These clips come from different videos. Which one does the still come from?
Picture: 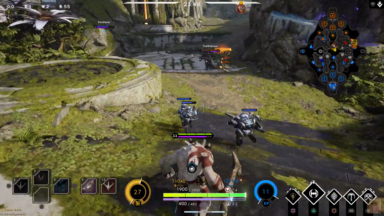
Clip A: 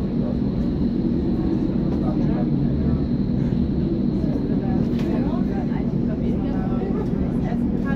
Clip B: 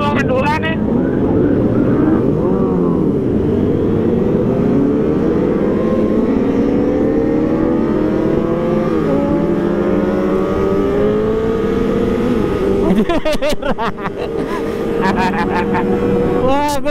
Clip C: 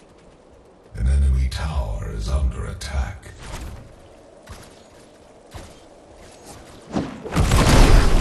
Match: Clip C